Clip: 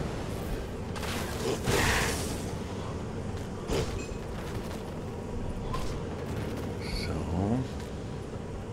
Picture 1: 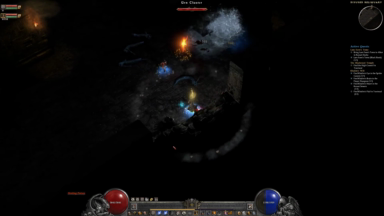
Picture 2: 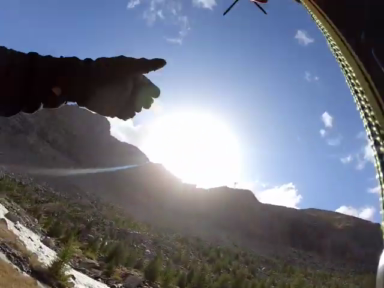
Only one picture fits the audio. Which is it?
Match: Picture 1